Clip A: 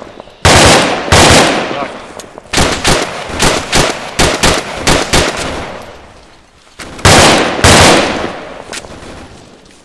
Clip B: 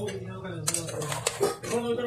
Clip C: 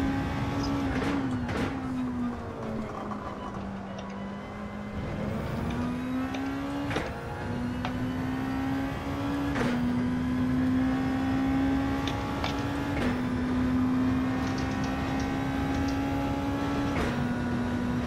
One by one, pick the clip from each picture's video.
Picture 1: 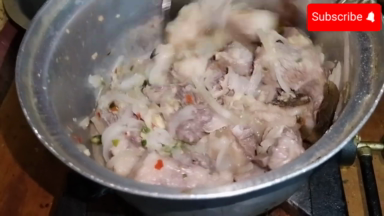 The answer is B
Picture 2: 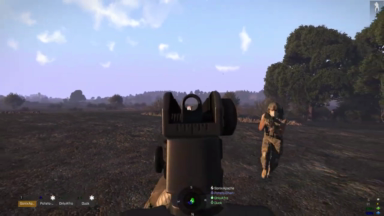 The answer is A